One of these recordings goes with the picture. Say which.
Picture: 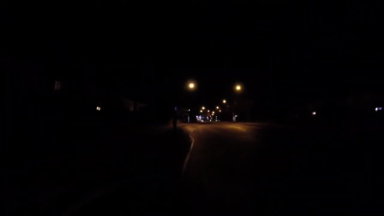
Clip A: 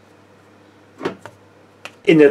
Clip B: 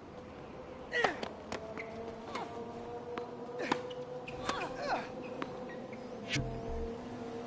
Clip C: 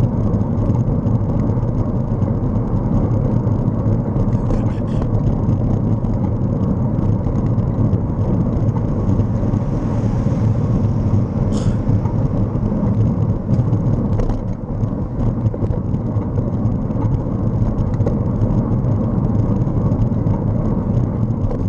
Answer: C